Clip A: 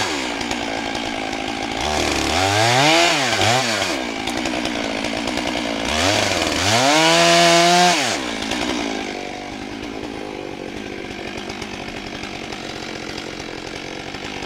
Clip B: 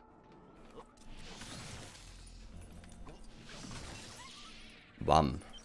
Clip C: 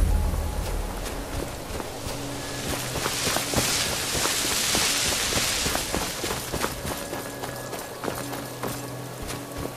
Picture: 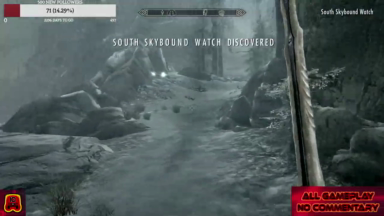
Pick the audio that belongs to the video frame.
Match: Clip C